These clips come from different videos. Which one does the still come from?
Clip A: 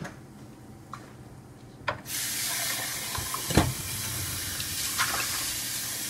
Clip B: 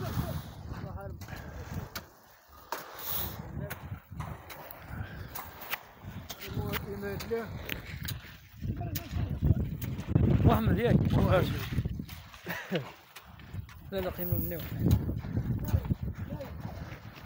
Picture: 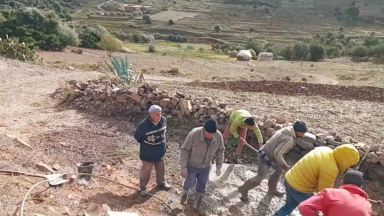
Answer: B